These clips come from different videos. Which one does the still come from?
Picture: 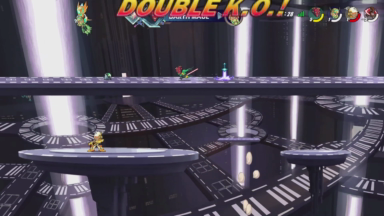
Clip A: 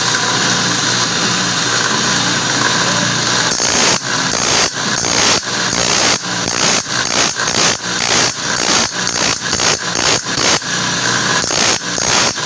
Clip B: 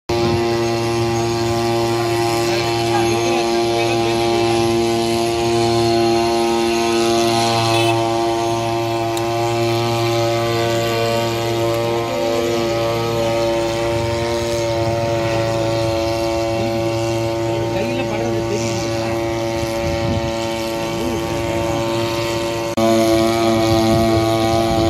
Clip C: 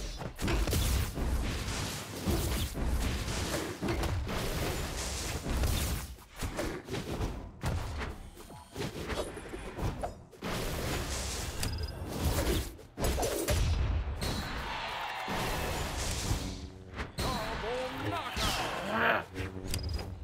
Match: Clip C